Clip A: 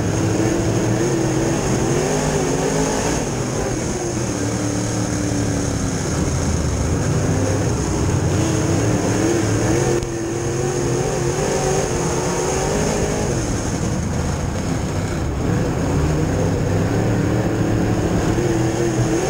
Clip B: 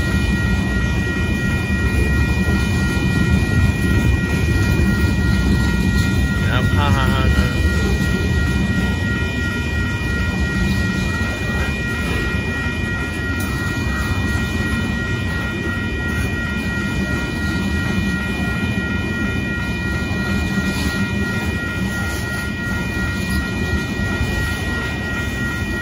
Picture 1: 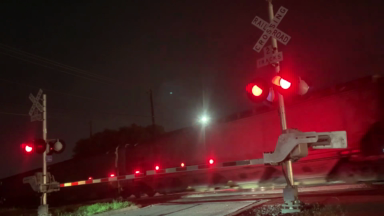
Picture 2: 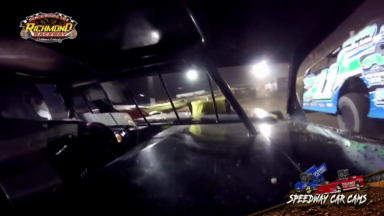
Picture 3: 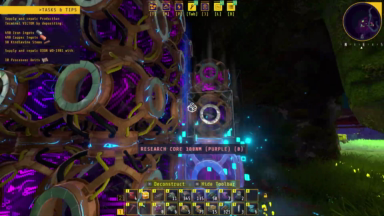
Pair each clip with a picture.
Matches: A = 2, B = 1